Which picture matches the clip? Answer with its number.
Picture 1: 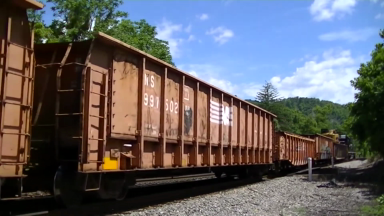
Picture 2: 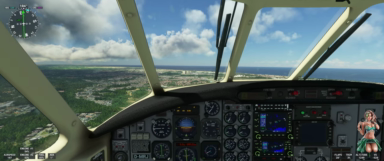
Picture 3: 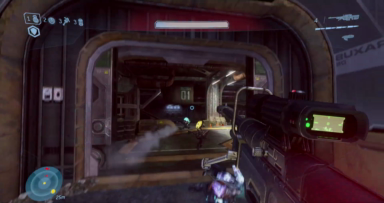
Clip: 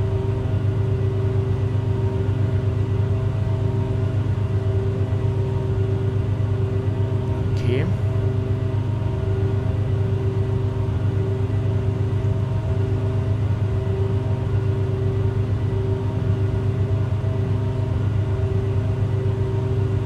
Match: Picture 2